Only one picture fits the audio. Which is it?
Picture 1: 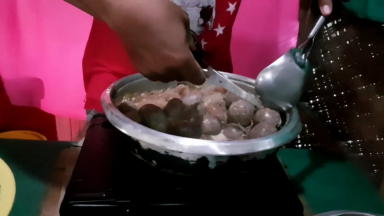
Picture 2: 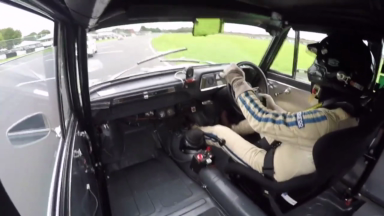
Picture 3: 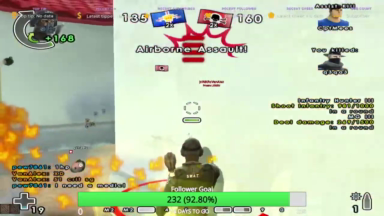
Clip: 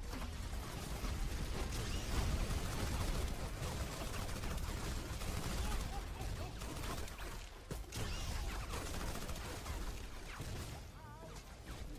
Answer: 3